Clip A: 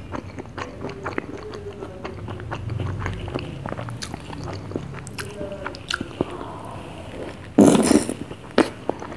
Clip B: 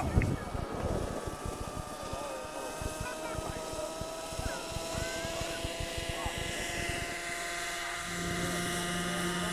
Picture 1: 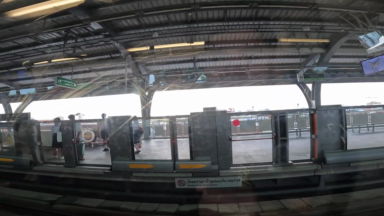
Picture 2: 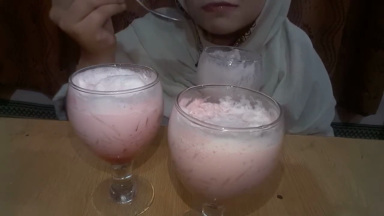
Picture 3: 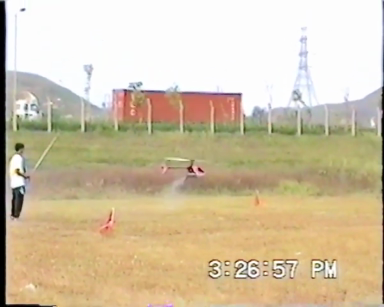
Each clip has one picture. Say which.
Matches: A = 2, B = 3